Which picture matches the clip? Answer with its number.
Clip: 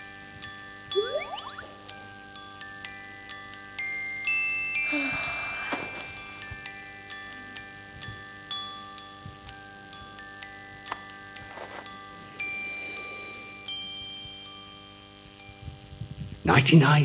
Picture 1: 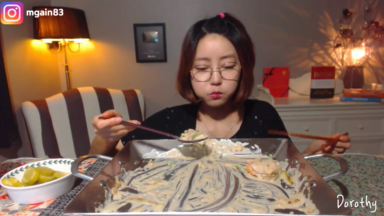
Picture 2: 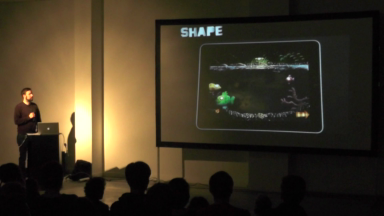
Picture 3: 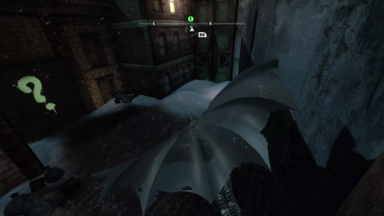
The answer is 2